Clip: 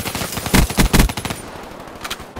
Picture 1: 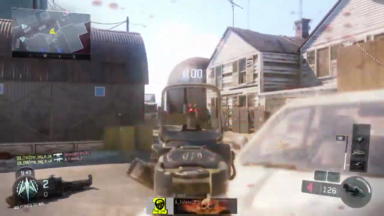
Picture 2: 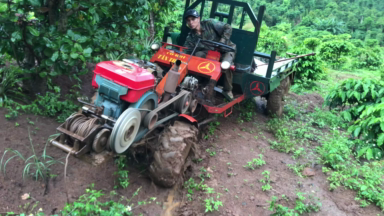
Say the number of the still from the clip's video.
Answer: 1